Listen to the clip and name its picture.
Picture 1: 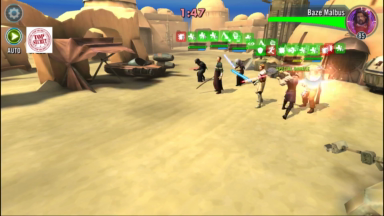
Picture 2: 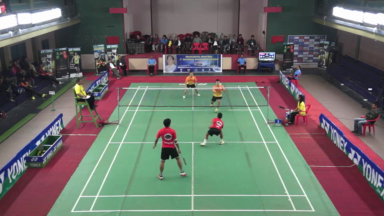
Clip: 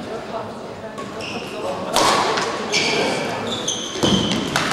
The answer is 2